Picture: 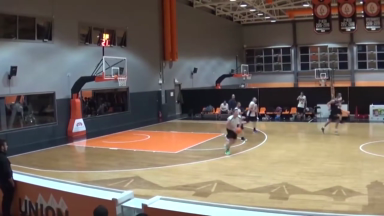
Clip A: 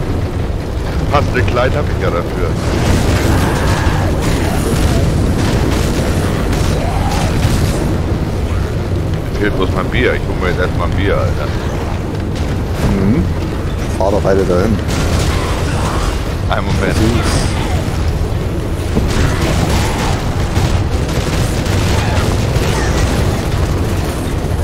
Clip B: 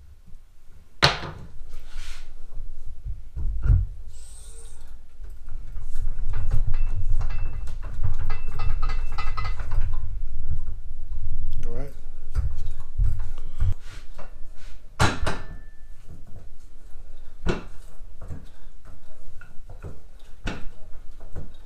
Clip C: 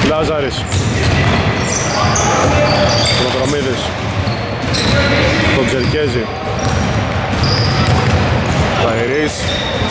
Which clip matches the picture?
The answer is C